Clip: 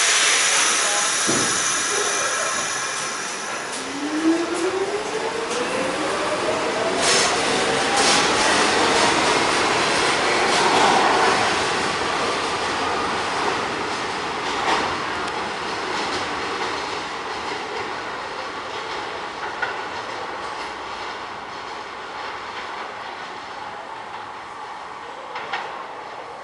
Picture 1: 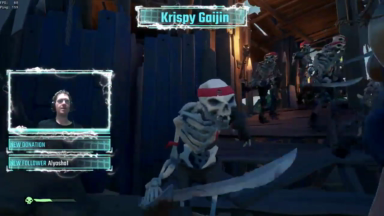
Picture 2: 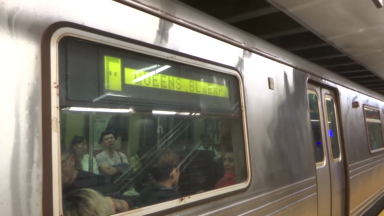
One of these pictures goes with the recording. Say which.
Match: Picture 2